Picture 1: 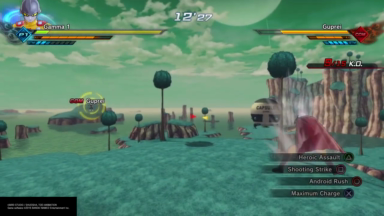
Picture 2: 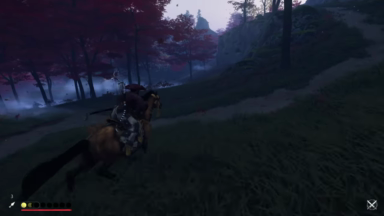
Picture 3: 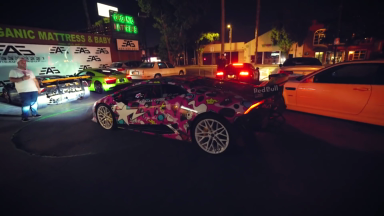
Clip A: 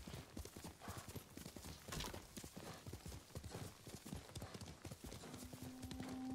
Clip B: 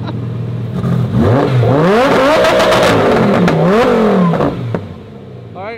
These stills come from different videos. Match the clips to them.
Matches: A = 2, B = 3